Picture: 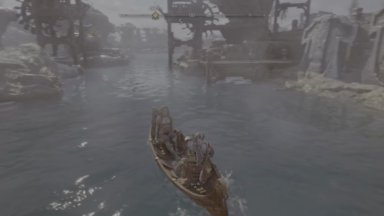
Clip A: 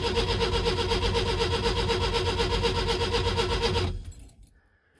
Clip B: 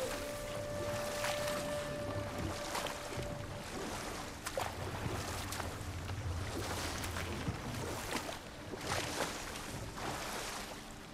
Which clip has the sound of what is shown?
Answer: B